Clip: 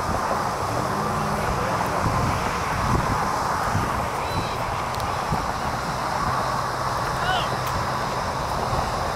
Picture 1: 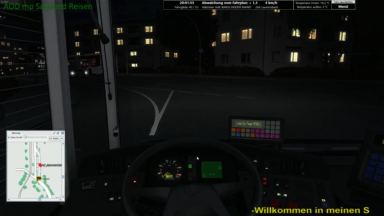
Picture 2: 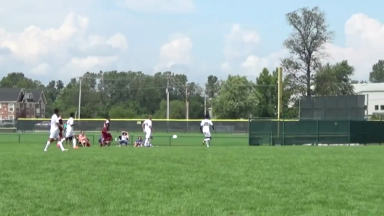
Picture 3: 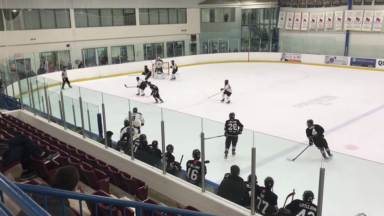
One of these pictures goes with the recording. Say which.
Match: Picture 2